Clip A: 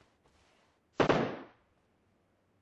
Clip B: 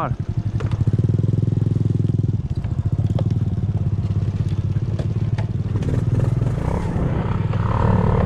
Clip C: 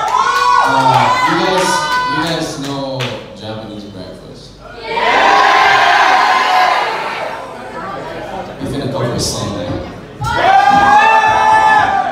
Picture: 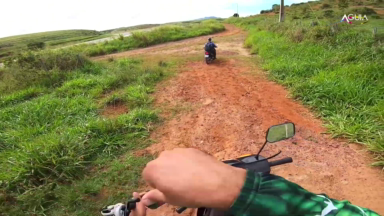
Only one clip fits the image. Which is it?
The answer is B